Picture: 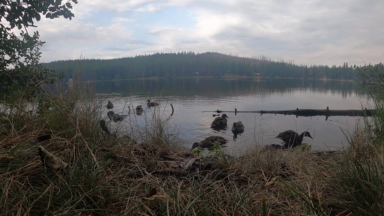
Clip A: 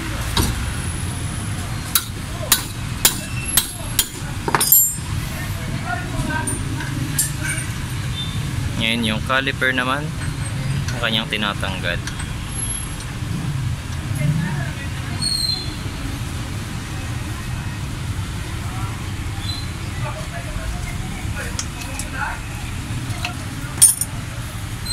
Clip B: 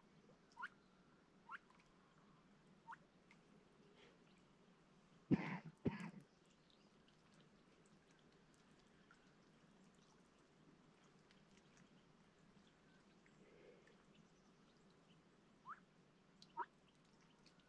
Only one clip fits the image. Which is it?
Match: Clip B